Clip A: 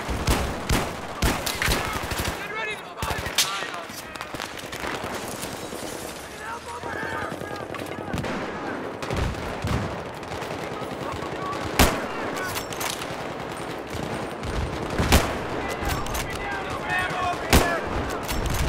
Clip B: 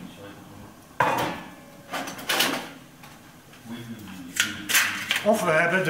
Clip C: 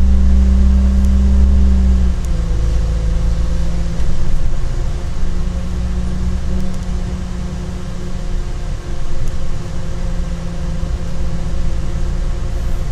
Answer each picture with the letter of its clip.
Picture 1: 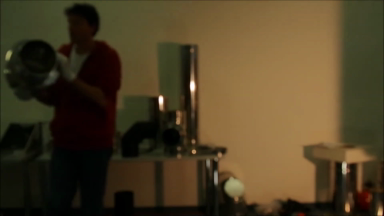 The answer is B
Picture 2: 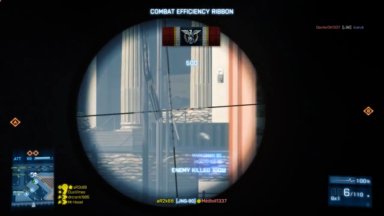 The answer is A